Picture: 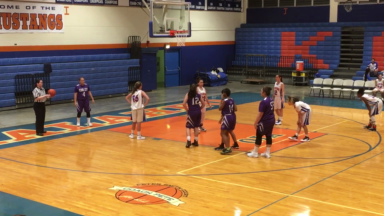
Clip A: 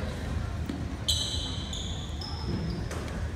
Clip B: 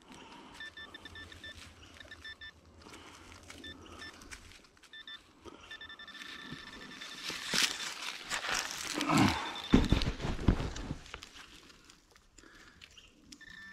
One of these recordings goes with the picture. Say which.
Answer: A